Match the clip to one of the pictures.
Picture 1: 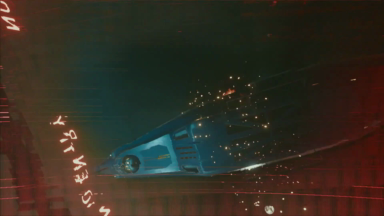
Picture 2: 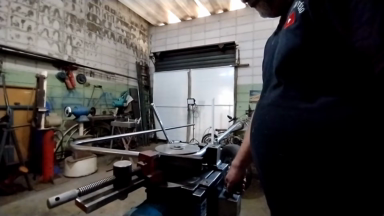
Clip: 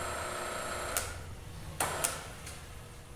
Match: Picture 2